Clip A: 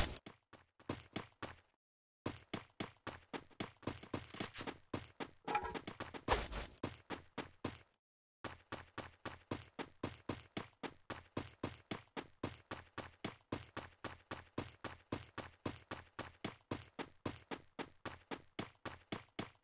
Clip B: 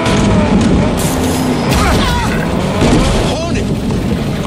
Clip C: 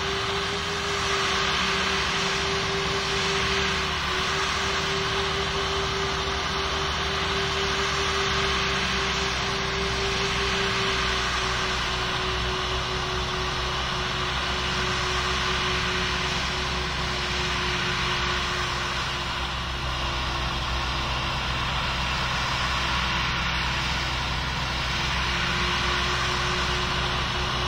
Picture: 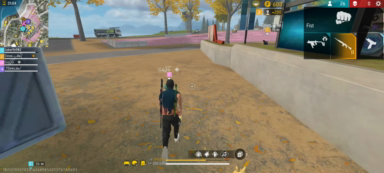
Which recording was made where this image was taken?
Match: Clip A